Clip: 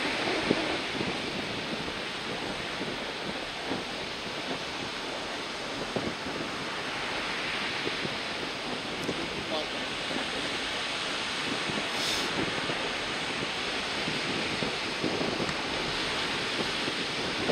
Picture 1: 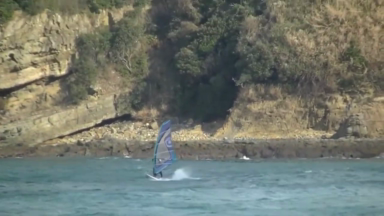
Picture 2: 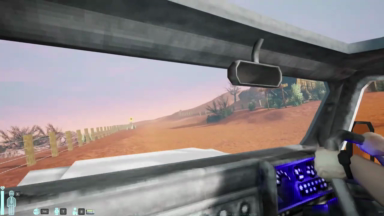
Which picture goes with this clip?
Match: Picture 1